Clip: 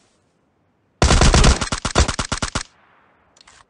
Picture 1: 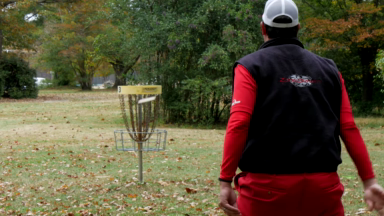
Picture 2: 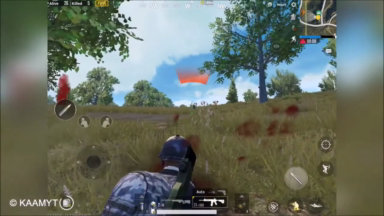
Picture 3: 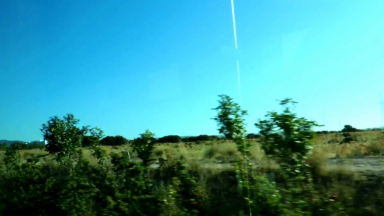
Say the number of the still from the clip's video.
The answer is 2